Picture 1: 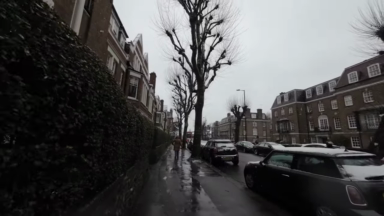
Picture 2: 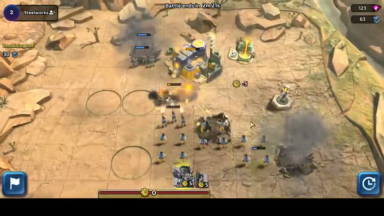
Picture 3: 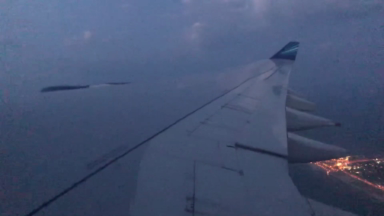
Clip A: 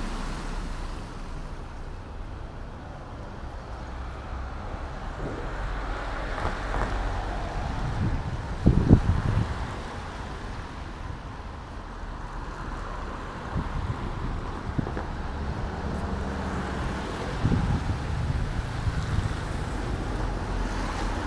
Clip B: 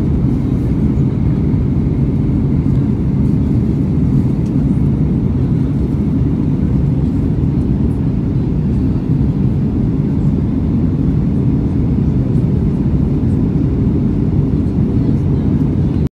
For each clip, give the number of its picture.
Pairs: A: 1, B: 3